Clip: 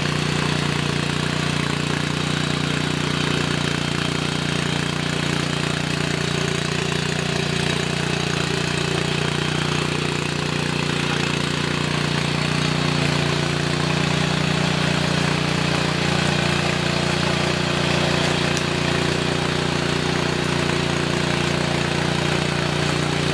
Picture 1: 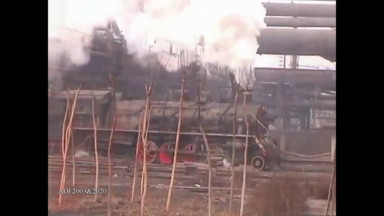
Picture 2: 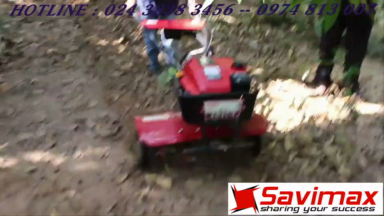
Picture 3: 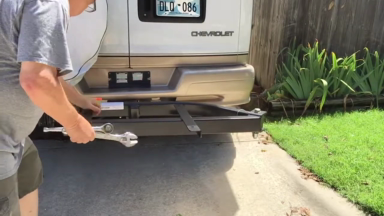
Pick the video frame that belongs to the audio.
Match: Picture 2